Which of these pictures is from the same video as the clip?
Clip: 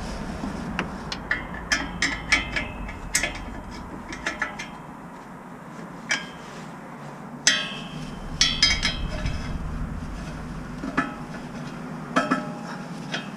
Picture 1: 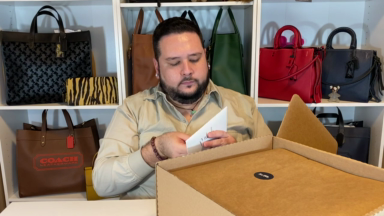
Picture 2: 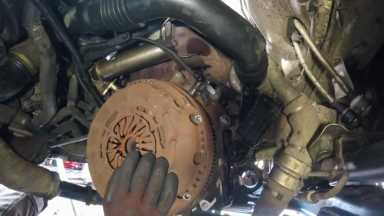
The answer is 2